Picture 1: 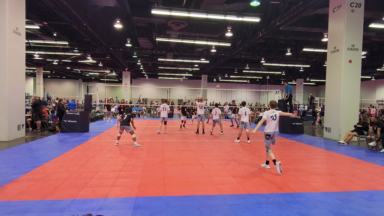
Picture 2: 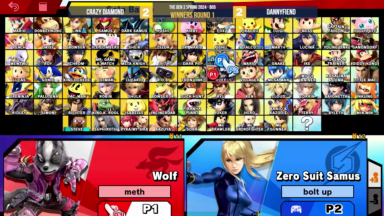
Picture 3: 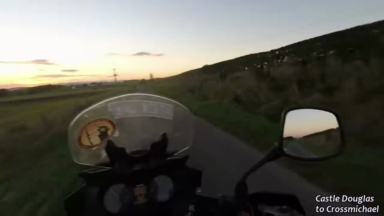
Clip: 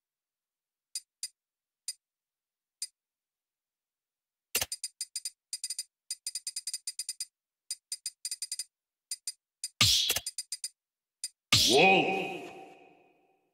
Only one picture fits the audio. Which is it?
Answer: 2